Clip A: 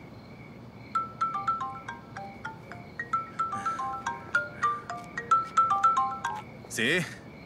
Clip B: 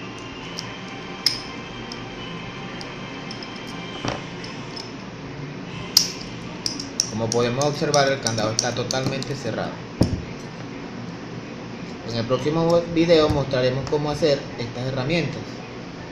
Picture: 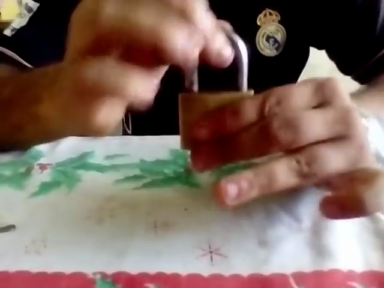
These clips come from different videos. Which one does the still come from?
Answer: B